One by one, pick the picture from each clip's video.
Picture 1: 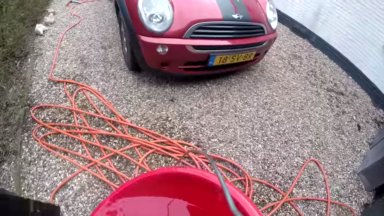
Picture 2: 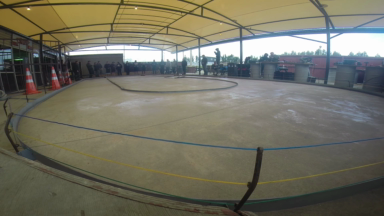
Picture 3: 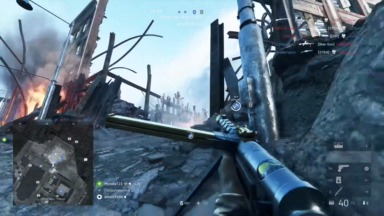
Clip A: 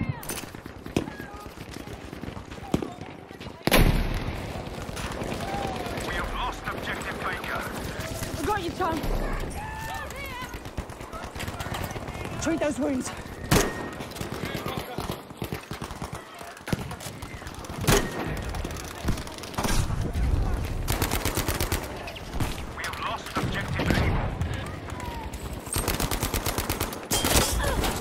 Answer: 3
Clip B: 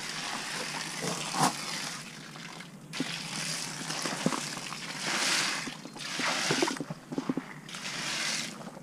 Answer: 1